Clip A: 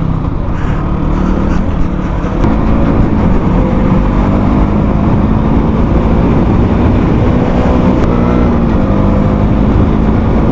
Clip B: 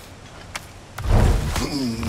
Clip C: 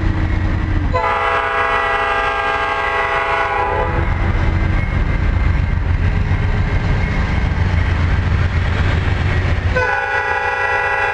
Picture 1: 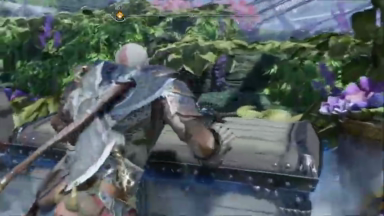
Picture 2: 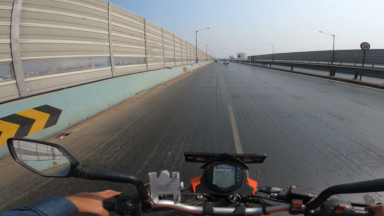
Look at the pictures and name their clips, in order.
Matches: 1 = B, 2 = A